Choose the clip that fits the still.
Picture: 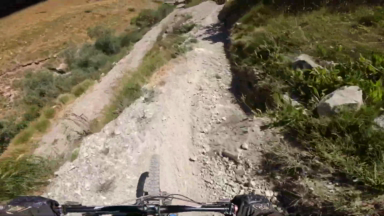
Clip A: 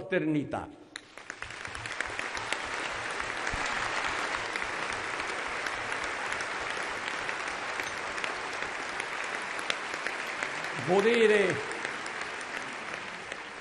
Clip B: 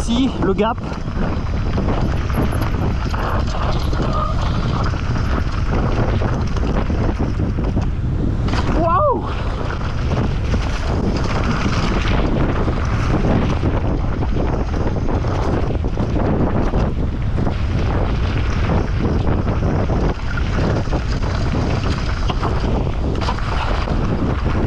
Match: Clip B